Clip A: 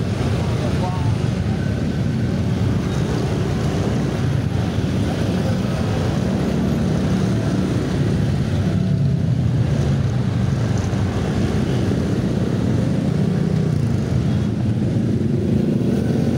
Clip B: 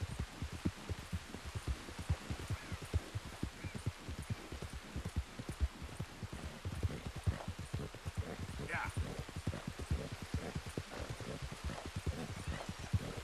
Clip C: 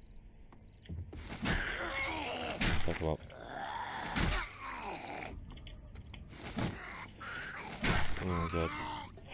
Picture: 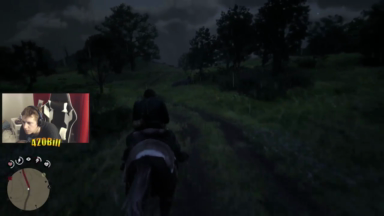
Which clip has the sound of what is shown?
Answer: B